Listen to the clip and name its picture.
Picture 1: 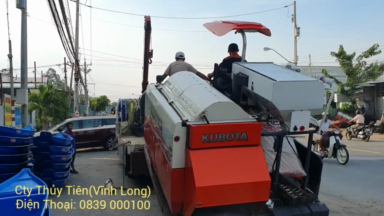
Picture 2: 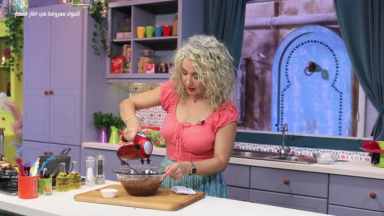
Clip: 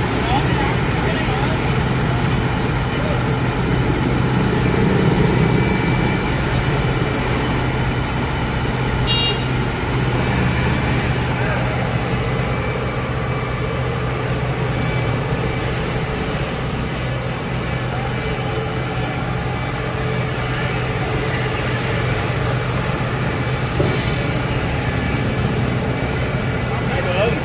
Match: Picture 1